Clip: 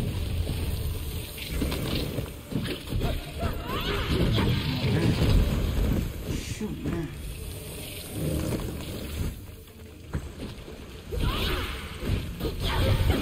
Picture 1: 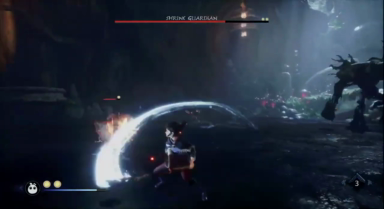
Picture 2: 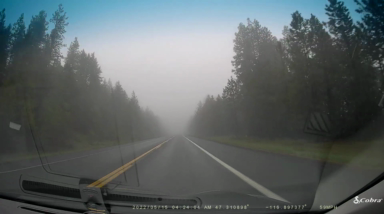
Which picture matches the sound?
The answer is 1